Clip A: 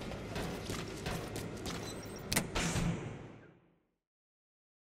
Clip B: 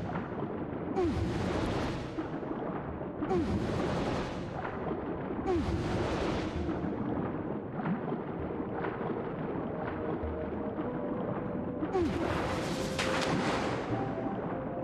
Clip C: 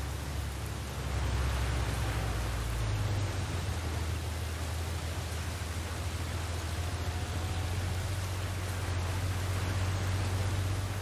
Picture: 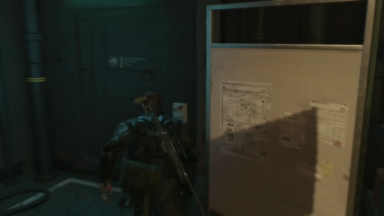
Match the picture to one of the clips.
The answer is A